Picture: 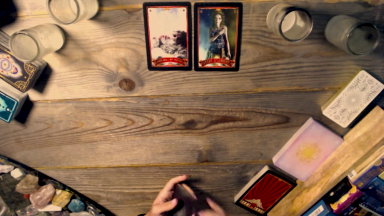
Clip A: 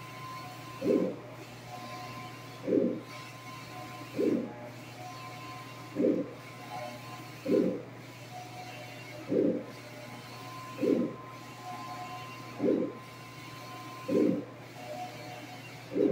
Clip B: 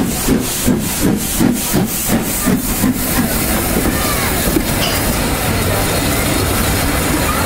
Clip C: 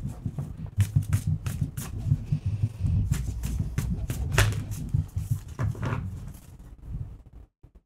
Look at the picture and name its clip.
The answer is C